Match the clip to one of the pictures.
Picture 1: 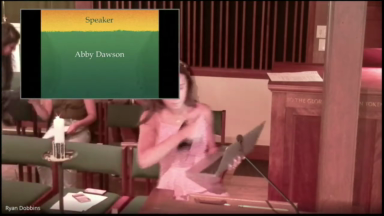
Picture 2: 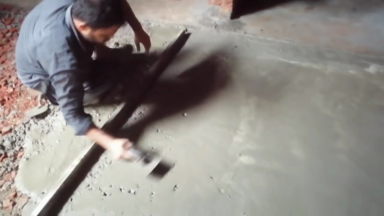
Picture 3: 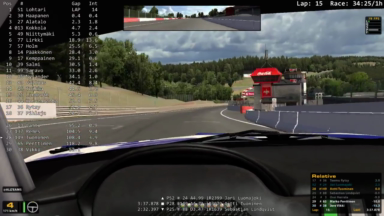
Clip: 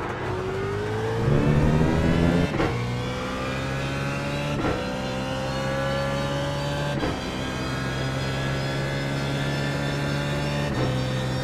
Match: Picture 3